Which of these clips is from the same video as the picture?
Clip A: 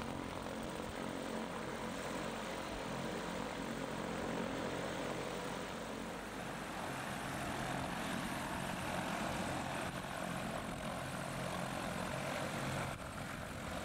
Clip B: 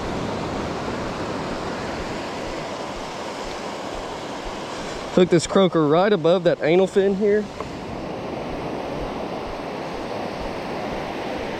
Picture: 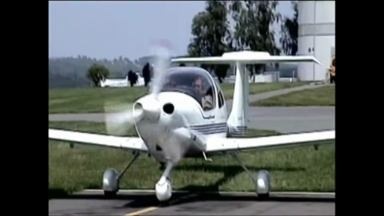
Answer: A